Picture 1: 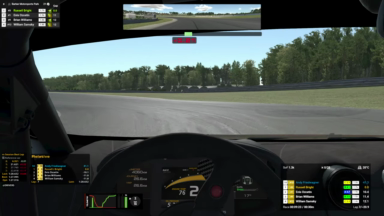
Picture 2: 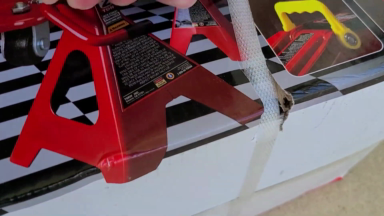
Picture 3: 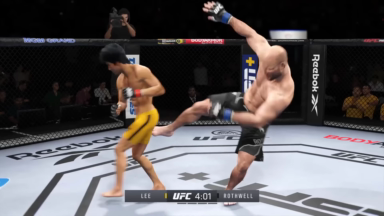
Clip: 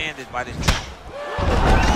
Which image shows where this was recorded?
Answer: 3